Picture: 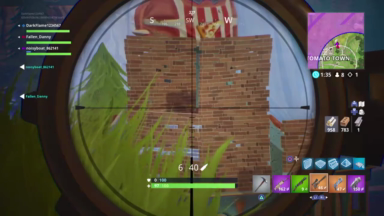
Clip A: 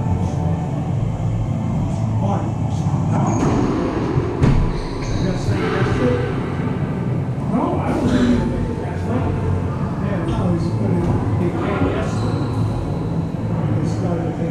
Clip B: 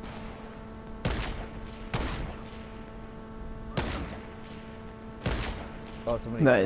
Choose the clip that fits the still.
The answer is B